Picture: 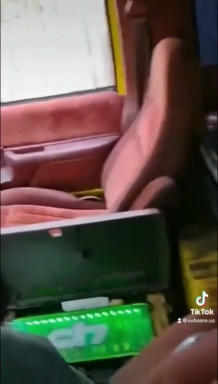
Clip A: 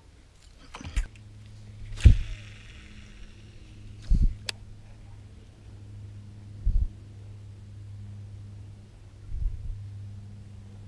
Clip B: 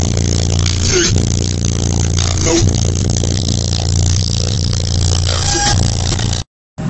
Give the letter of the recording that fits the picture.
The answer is B